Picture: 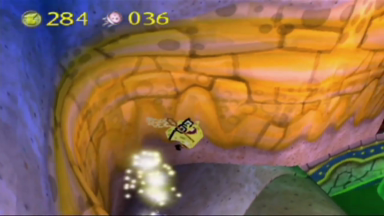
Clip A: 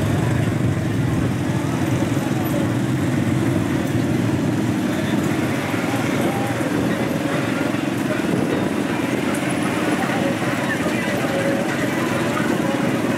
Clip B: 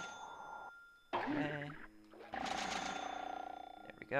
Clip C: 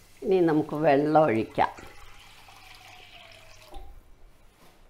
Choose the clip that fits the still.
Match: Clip B